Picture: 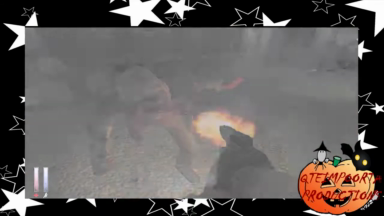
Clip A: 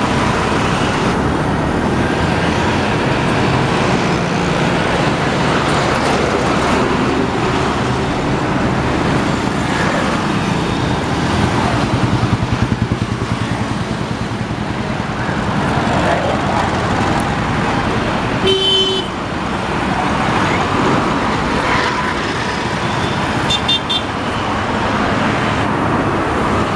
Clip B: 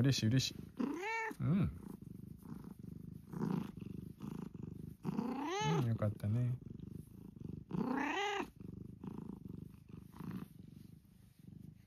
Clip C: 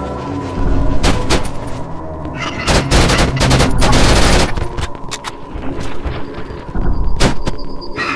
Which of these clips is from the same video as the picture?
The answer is C